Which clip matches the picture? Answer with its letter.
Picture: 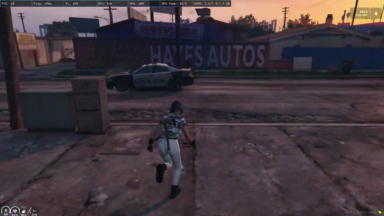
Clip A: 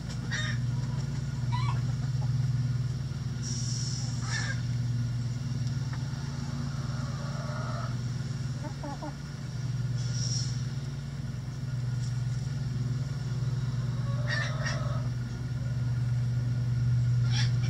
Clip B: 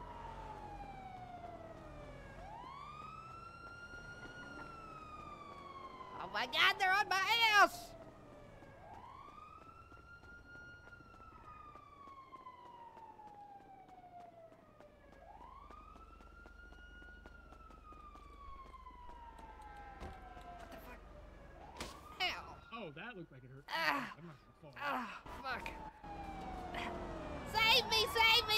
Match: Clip B